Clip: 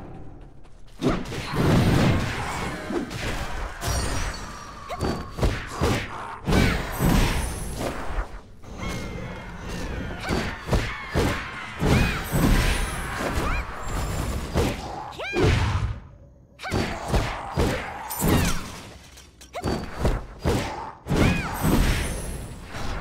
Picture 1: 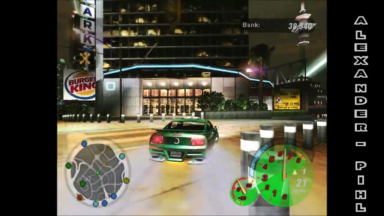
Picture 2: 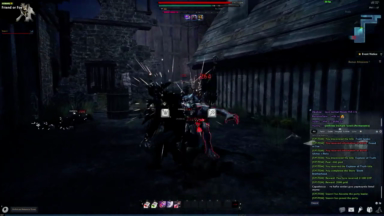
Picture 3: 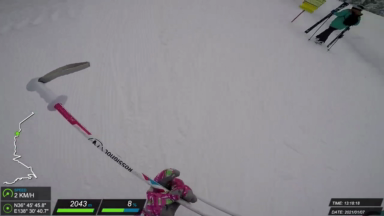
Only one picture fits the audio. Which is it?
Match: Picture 2